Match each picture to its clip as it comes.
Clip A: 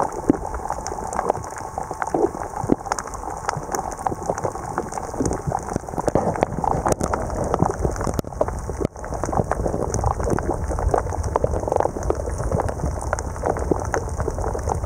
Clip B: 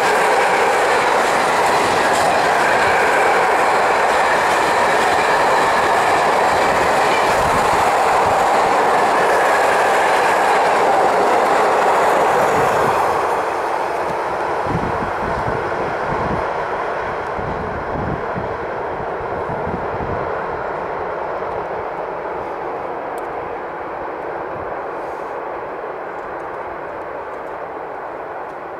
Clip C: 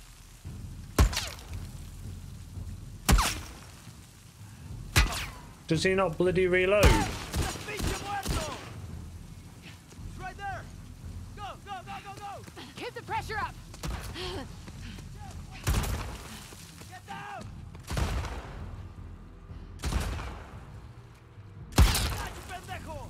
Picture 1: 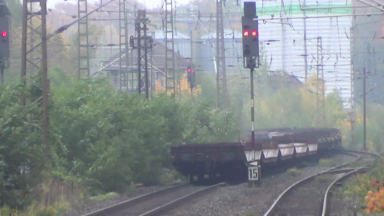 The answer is B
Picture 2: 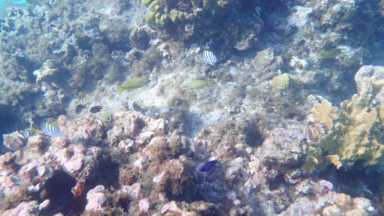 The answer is A